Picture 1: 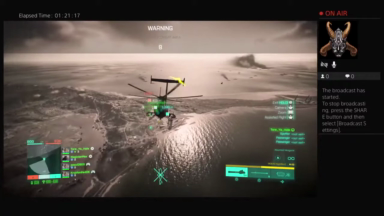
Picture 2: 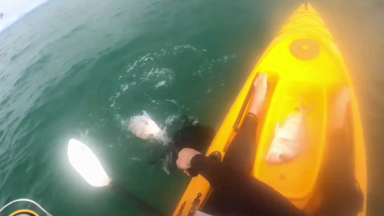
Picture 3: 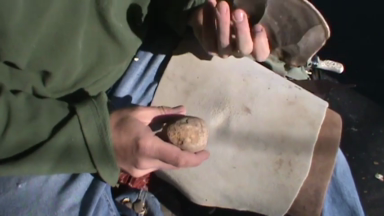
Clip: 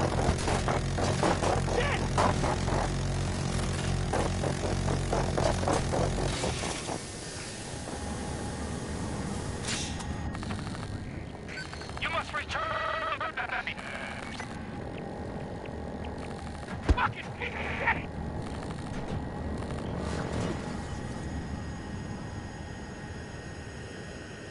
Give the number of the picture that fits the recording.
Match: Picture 1